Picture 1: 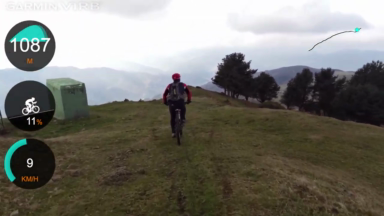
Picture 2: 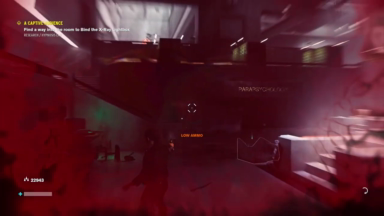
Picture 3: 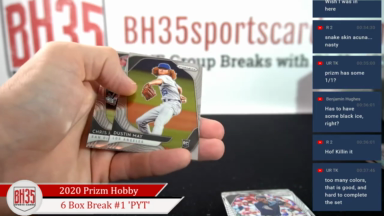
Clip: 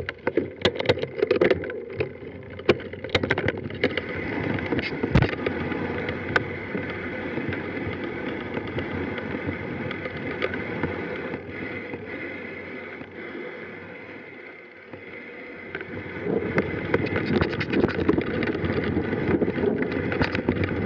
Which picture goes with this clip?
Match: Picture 1